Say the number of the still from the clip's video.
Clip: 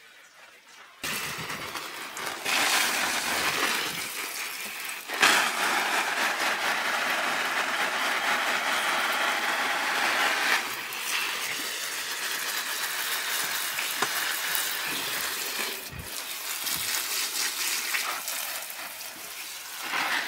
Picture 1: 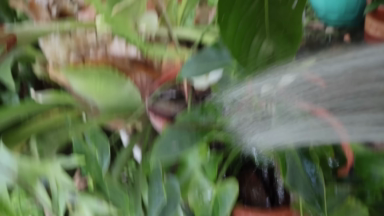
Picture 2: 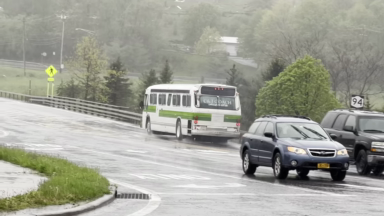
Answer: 1